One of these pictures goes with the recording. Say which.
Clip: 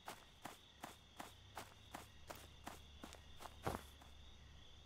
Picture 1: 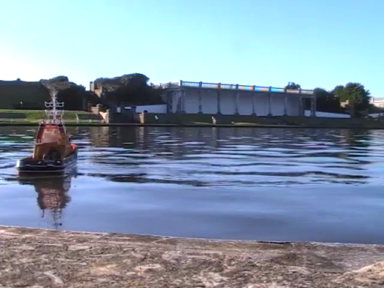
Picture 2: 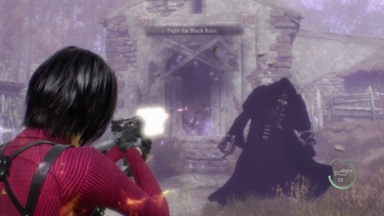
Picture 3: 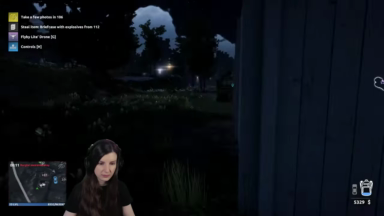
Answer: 3